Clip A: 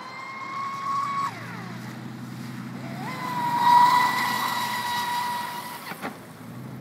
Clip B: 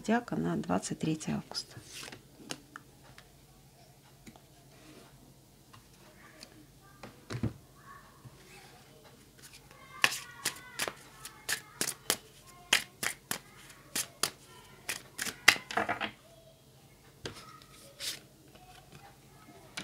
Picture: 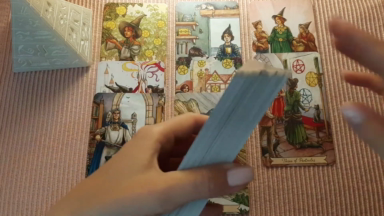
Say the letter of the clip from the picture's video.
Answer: B